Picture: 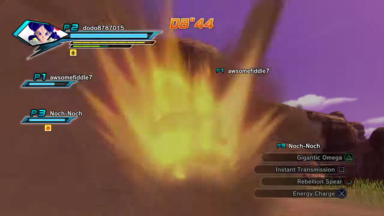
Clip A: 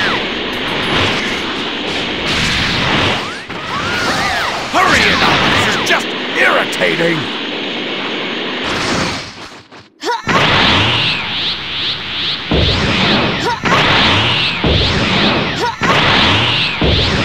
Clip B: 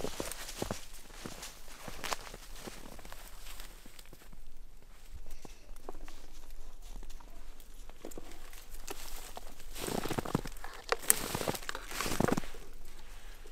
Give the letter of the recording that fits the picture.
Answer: A